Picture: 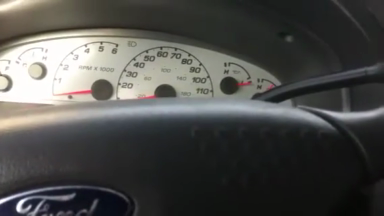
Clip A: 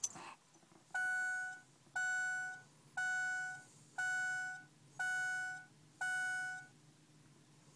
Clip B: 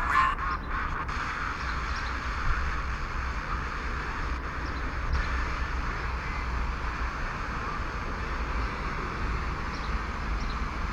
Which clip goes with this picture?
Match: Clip A